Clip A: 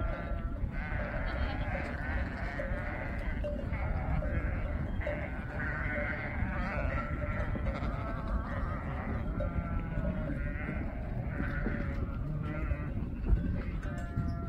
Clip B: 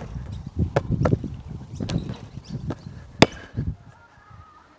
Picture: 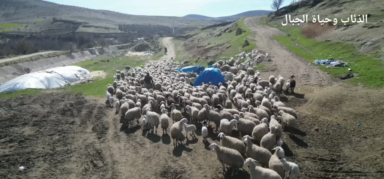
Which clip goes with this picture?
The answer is A